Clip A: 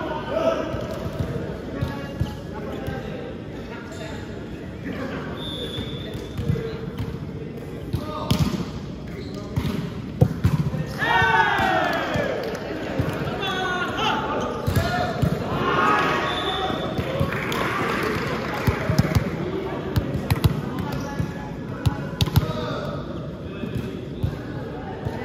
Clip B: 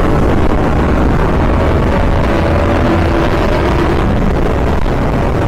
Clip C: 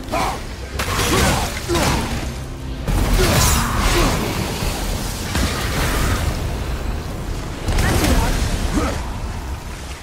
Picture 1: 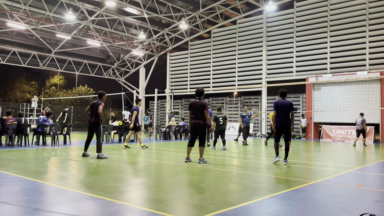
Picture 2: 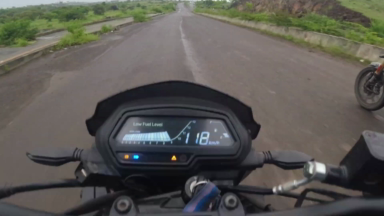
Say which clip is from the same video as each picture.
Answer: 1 A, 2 B